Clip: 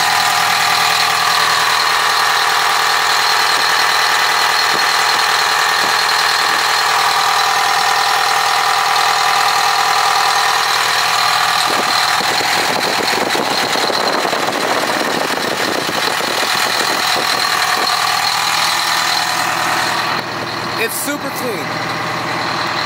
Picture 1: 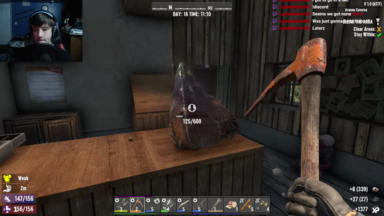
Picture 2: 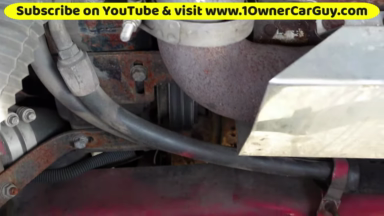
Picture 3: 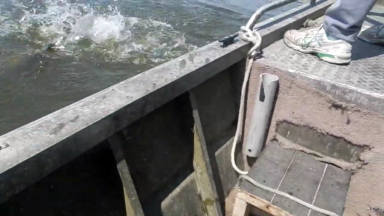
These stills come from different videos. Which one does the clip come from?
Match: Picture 2